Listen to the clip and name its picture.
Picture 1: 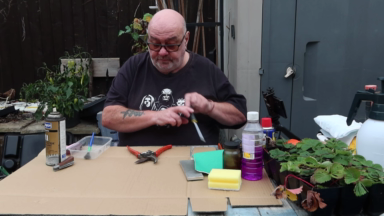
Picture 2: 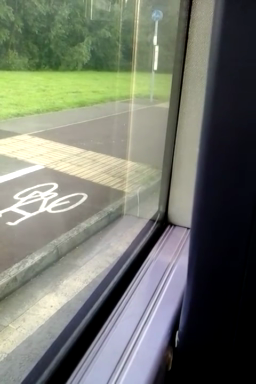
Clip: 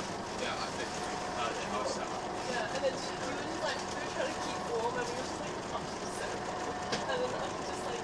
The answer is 2